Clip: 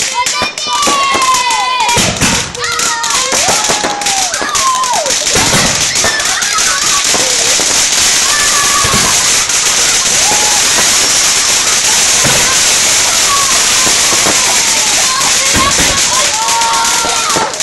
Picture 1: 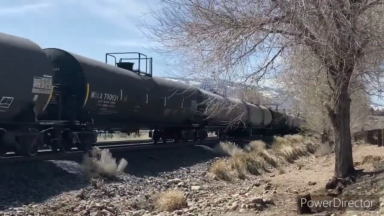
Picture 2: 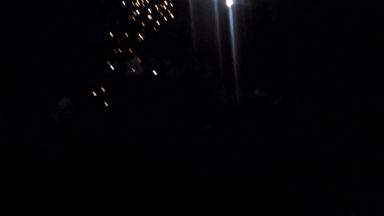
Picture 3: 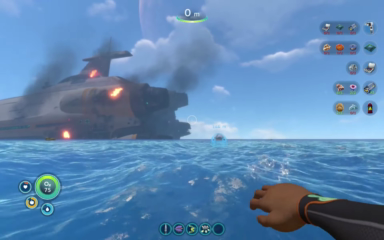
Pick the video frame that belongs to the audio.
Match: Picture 2